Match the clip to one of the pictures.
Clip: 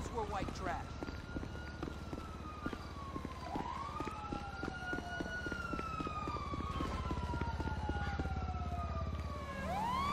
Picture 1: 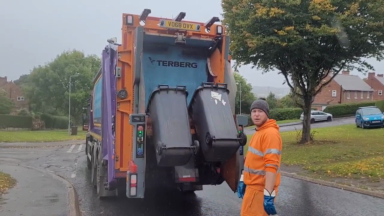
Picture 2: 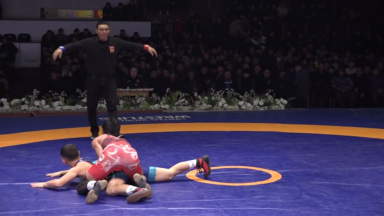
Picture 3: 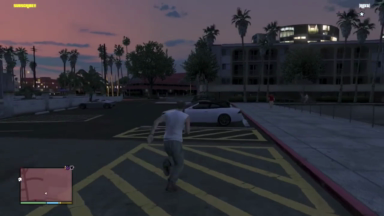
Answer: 3